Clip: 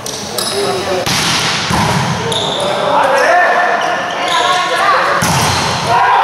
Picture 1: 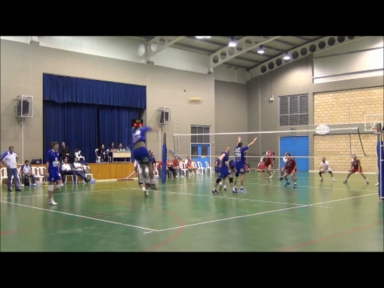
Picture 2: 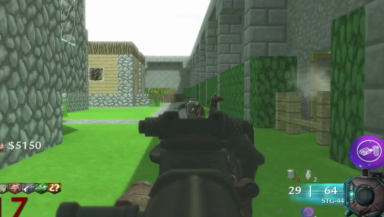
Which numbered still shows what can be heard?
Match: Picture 1